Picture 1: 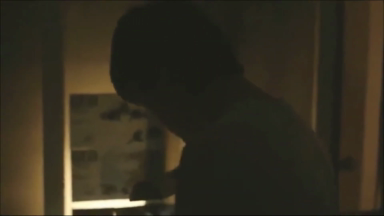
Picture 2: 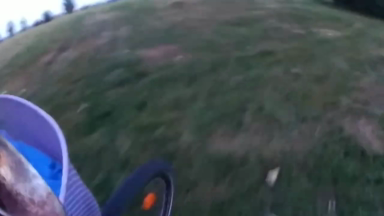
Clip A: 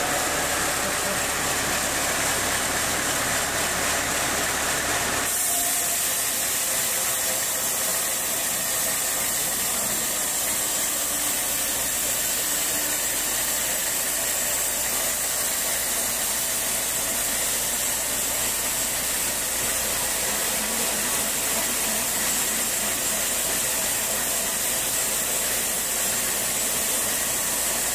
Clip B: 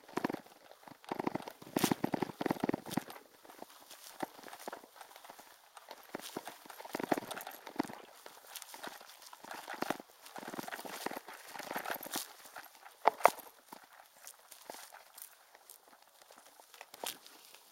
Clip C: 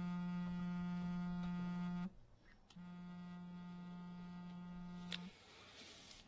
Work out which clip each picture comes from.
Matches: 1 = C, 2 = B